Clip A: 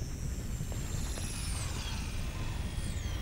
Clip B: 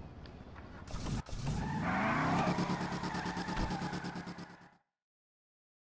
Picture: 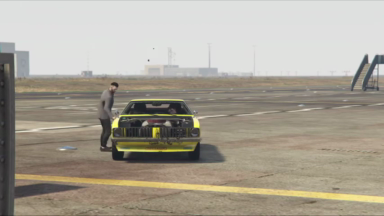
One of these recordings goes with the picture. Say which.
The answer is B